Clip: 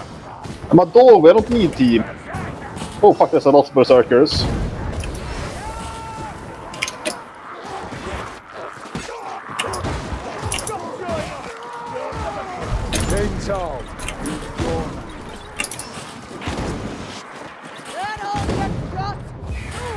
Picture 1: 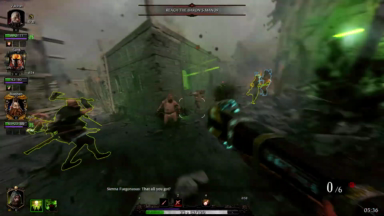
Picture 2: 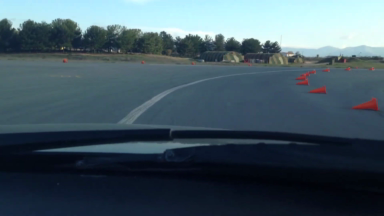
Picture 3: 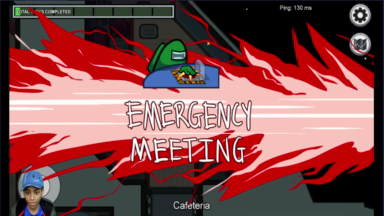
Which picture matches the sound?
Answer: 1